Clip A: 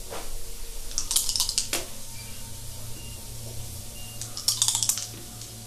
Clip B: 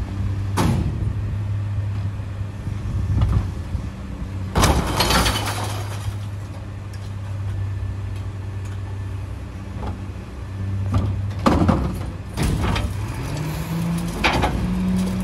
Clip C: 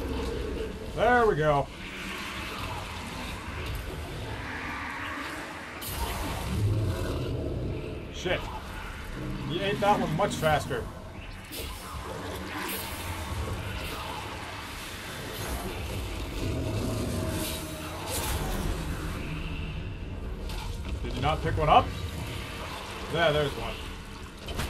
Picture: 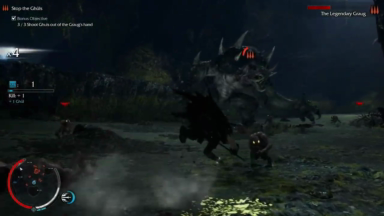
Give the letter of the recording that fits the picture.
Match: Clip C